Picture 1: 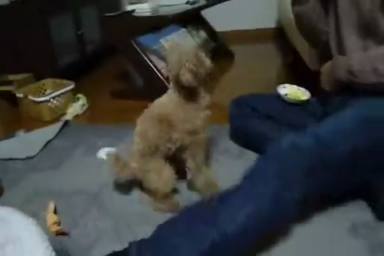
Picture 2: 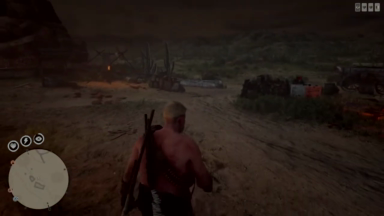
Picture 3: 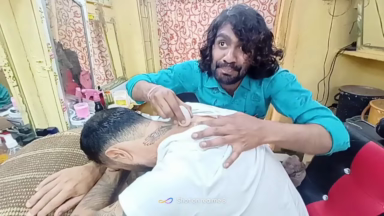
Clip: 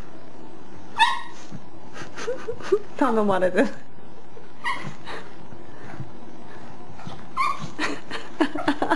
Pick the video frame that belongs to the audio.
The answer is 1